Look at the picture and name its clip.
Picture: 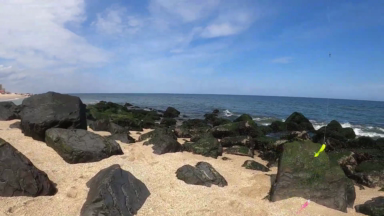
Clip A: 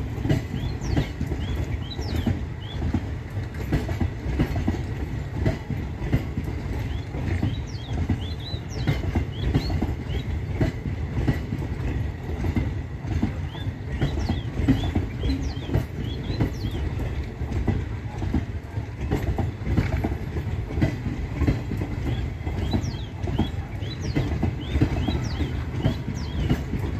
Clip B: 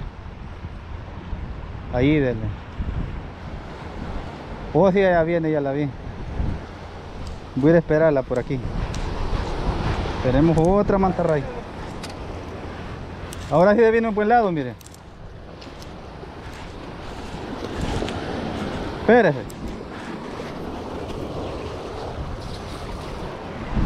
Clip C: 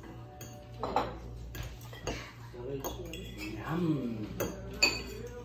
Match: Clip B